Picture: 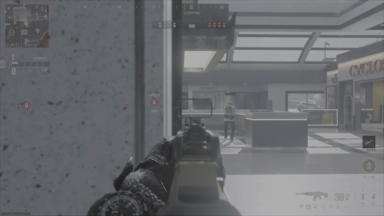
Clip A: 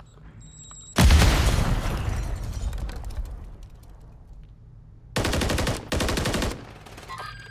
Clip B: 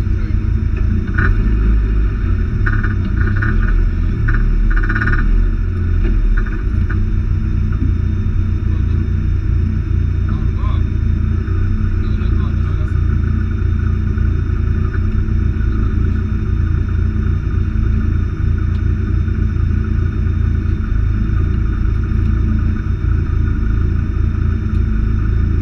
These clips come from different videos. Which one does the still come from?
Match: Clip A